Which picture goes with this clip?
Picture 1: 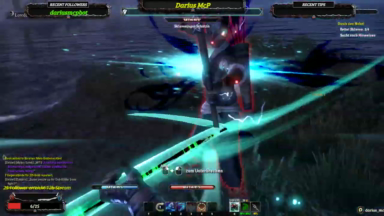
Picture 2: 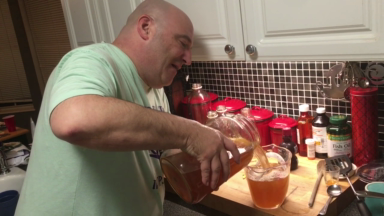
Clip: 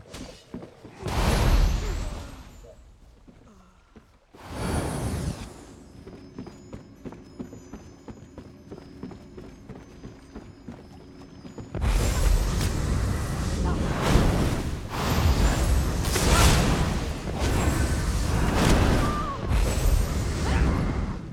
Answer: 1